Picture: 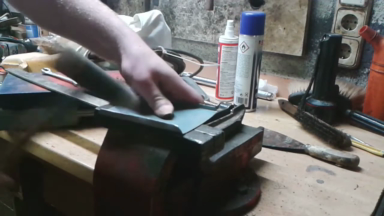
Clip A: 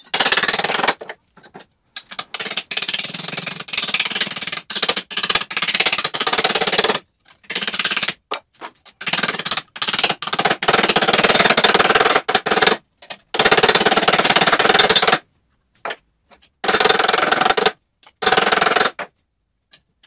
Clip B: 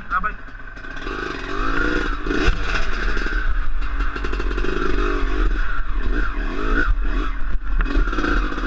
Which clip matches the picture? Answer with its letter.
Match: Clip A